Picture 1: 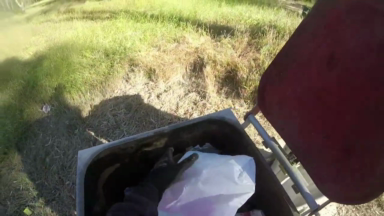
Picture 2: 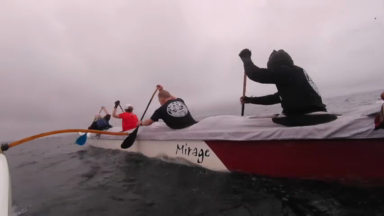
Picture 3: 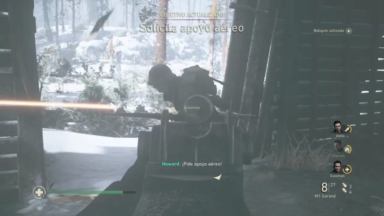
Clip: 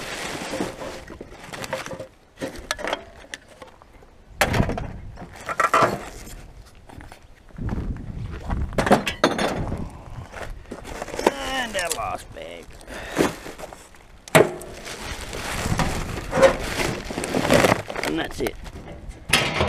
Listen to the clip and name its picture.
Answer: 1